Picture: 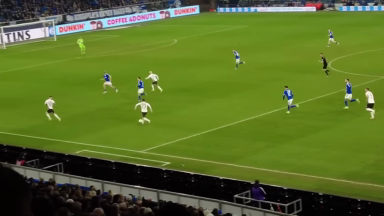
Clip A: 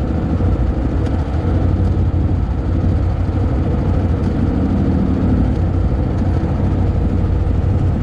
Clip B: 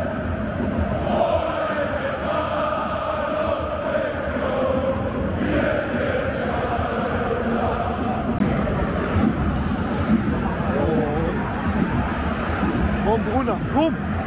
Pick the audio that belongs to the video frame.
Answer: B